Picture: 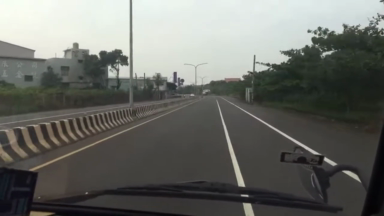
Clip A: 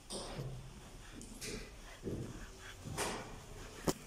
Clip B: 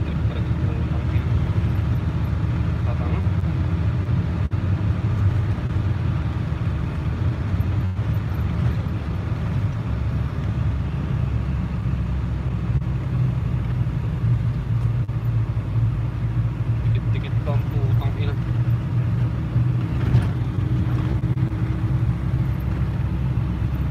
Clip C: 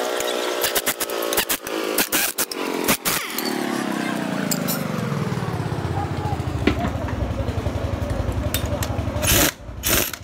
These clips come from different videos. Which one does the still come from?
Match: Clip B